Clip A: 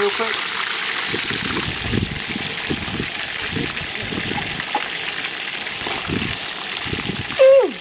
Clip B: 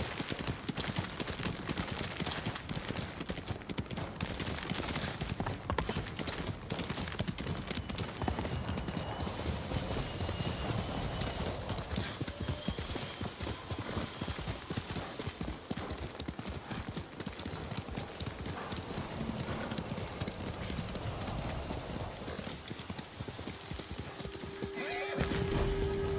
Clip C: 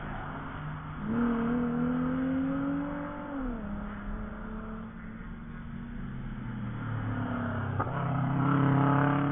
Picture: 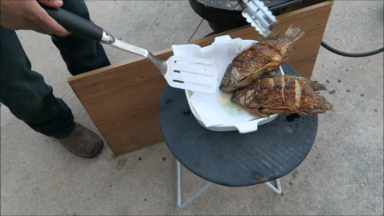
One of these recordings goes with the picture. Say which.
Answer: A